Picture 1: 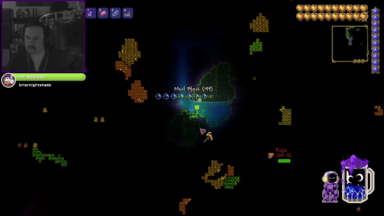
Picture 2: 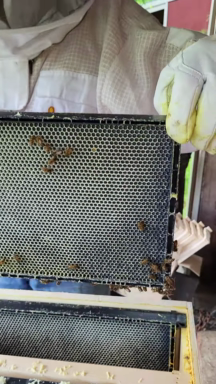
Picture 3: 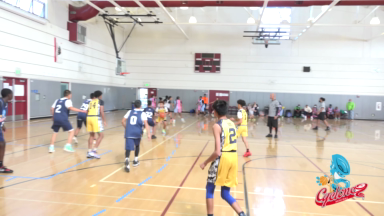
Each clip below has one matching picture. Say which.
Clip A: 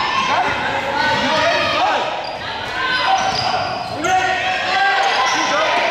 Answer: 3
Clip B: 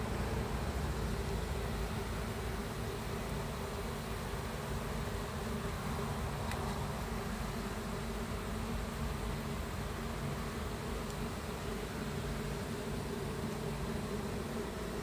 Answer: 2